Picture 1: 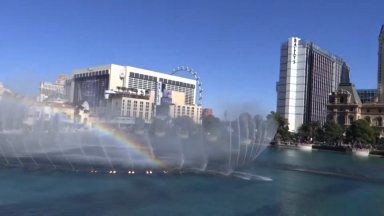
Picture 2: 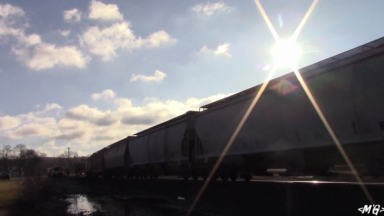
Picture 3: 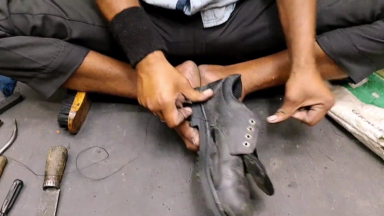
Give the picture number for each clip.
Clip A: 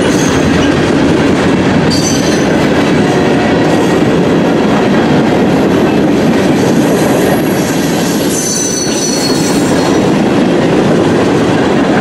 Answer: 2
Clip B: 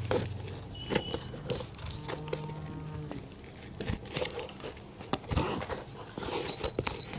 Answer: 3